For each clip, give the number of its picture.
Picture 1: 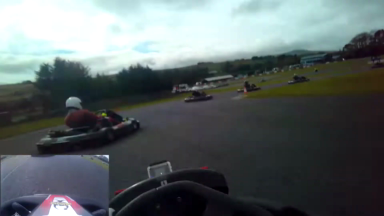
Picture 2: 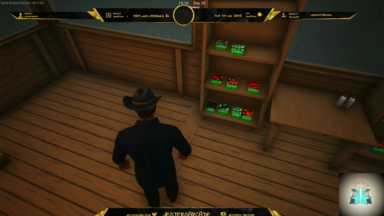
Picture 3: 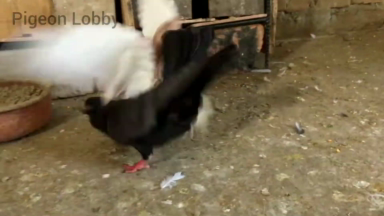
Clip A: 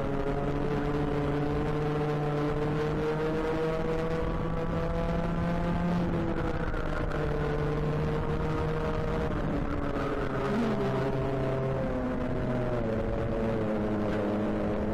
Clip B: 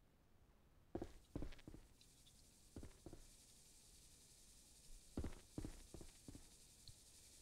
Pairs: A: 1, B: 2